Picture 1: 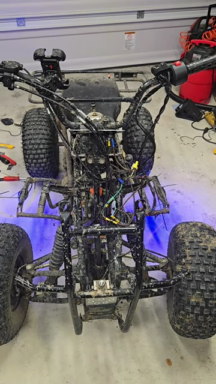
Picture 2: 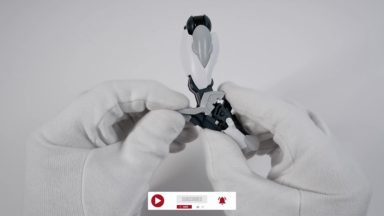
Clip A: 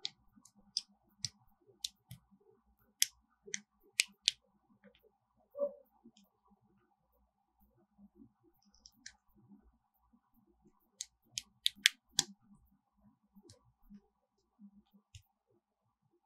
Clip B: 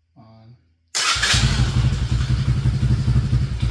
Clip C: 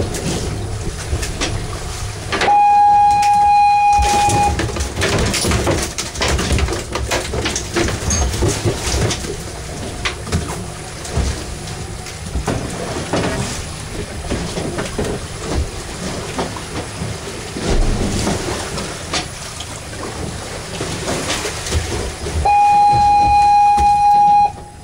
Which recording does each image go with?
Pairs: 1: B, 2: A